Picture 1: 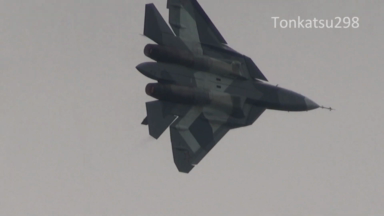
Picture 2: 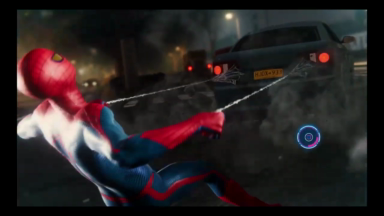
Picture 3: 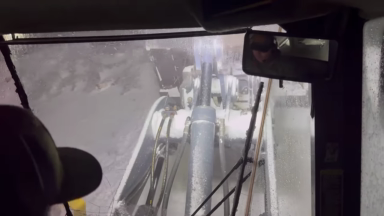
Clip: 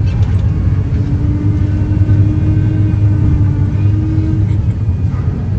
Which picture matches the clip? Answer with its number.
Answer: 3